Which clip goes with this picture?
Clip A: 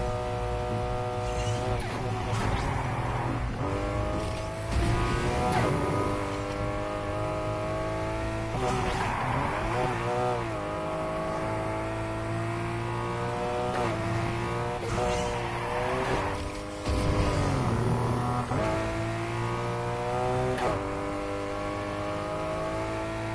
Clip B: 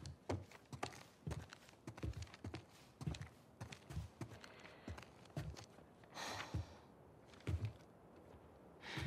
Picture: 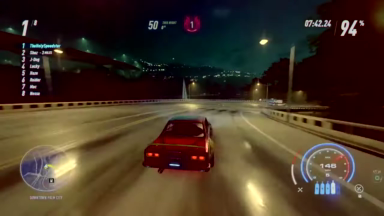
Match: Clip A